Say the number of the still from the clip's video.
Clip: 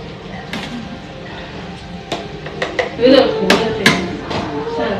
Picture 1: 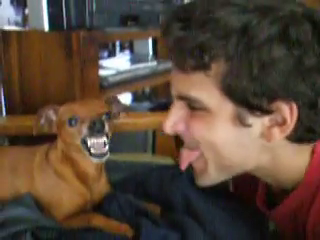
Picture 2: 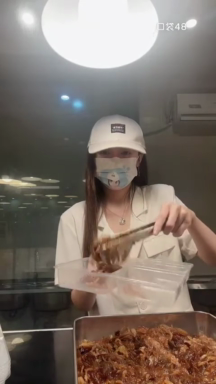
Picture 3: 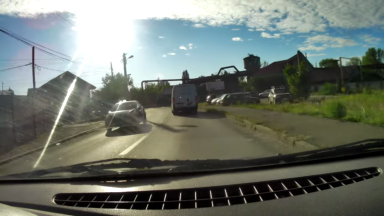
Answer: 2